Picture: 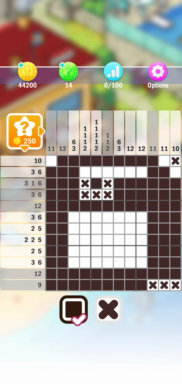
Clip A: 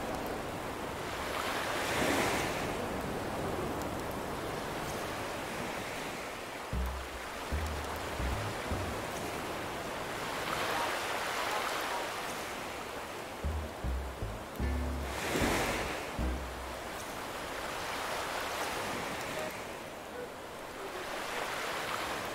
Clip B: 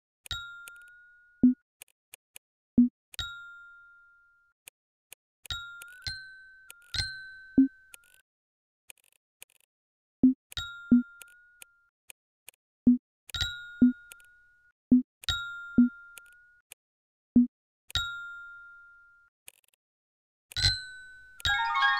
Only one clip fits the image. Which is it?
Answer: B